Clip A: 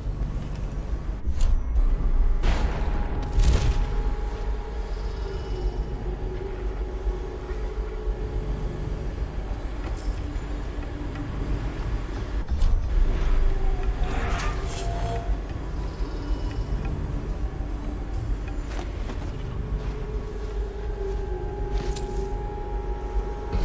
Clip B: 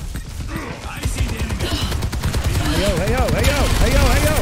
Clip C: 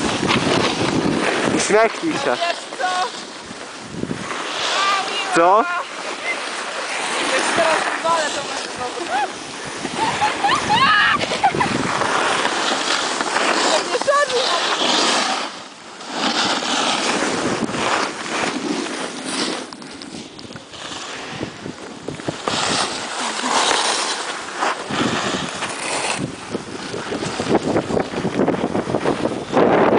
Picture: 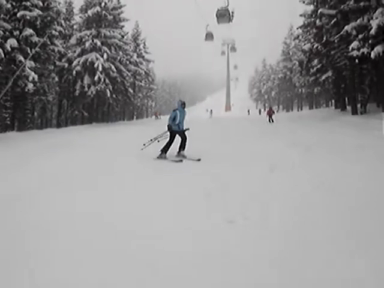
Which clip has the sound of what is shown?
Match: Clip C